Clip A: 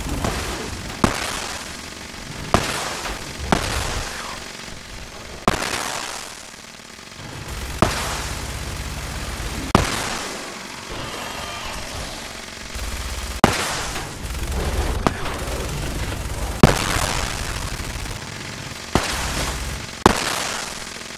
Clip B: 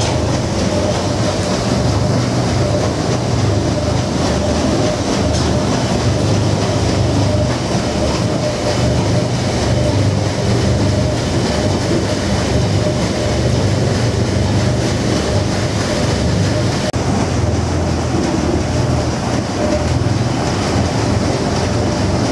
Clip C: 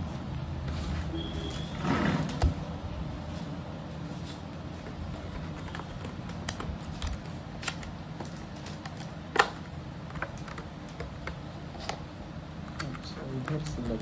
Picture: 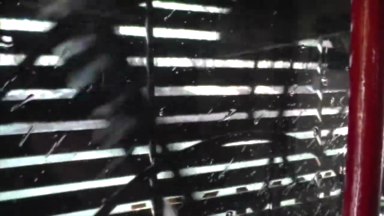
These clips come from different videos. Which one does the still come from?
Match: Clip B